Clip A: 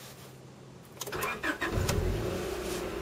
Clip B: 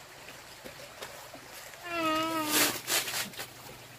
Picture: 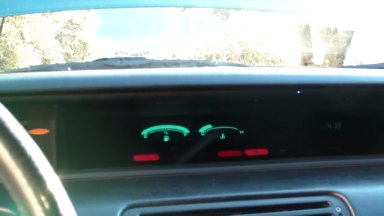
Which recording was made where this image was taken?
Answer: A